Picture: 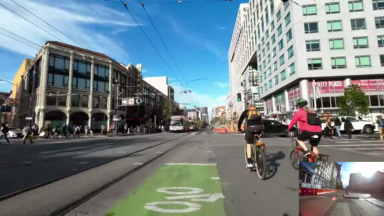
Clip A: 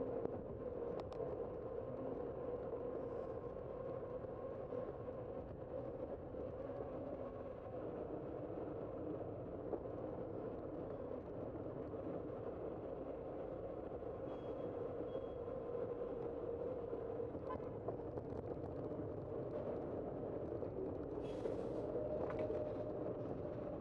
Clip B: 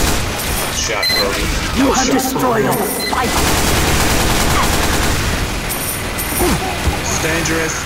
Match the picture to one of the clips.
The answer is A